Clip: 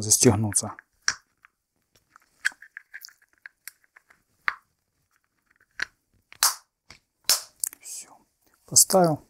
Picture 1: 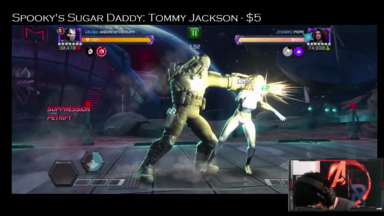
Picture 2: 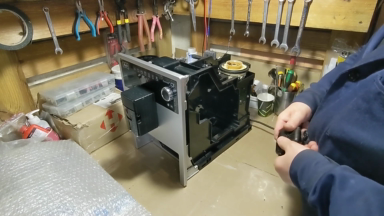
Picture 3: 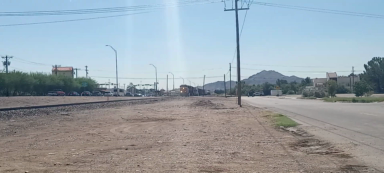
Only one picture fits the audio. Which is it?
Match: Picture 2